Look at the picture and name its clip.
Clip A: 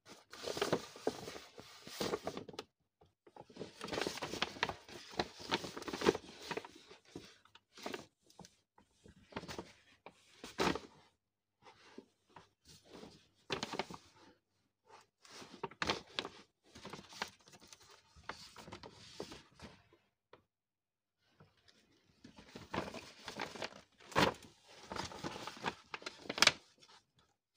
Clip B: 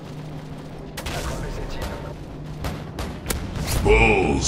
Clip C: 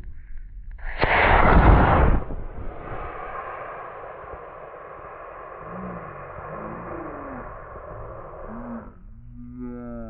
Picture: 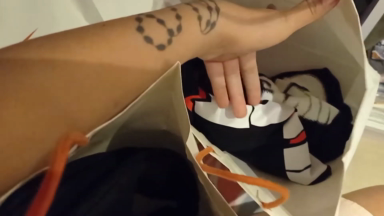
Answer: A